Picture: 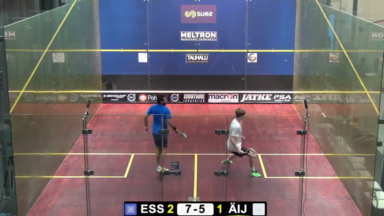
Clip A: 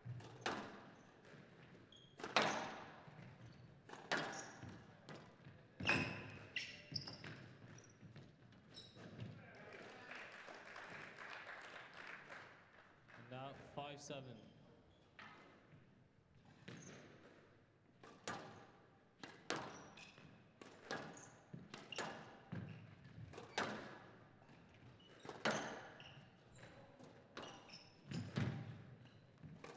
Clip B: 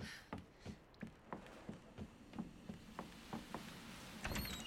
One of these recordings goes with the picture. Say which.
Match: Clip A